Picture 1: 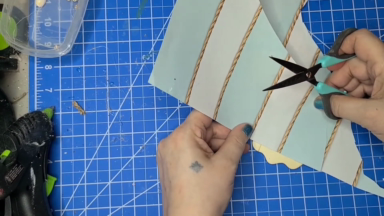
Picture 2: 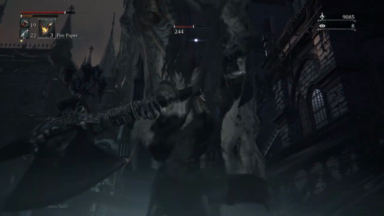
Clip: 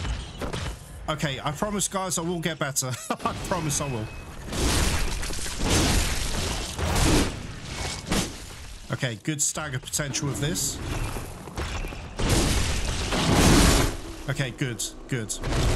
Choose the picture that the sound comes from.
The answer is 2